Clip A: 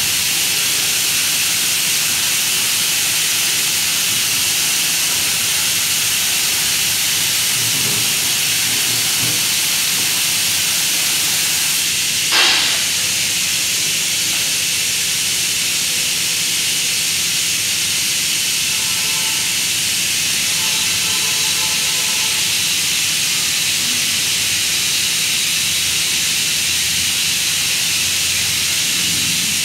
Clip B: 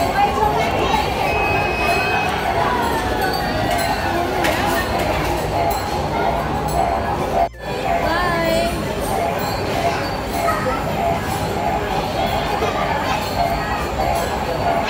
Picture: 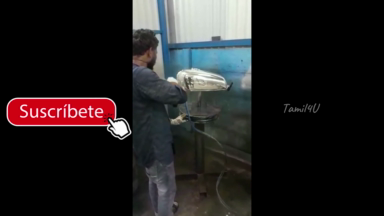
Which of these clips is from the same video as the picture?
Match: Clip A